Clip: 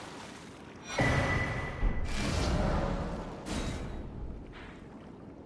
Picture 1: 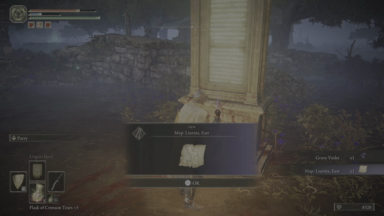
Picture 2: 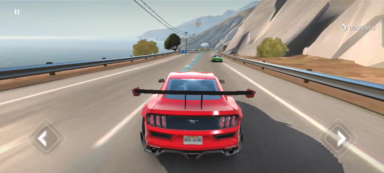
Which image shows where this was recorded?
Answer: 1